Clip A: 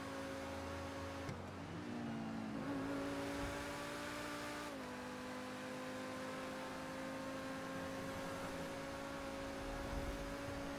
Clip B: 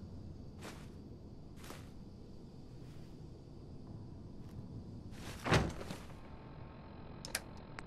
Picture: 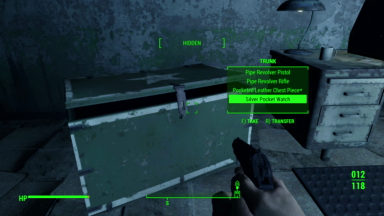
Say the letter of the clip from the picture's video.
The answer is B